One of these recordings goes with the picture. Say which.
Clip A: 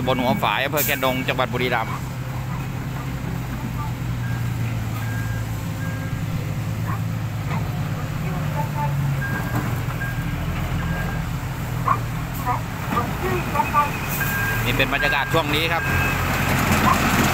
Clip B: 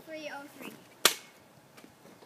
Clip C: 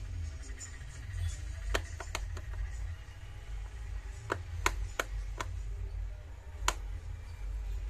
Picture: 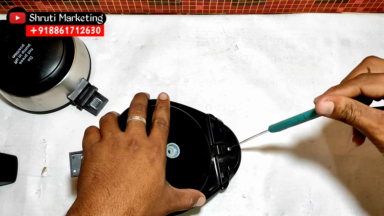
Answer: C